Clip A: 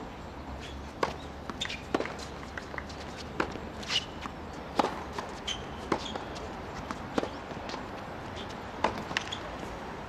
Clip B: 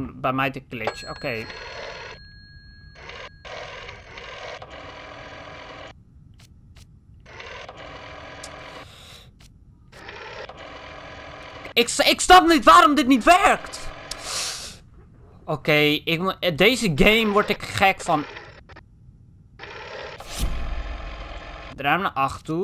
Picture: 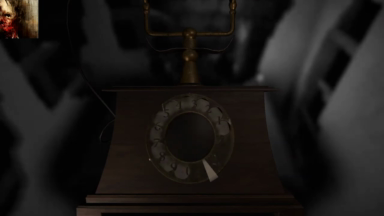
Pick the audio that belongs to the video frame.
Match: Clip B